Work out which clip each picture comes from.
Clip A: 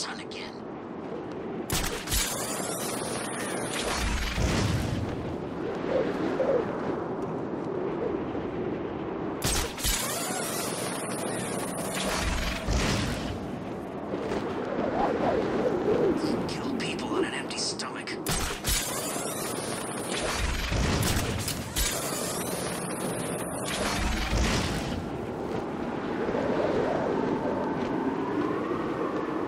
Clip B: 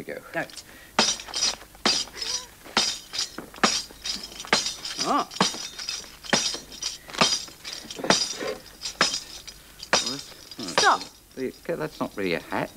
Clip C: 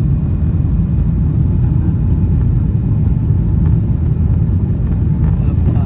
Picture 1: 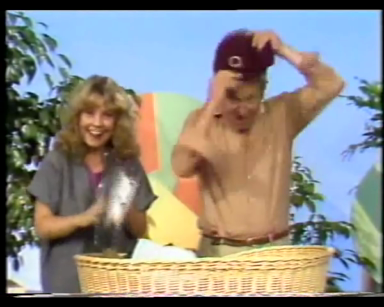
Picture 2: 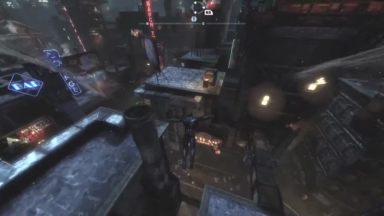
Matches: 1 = B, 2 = A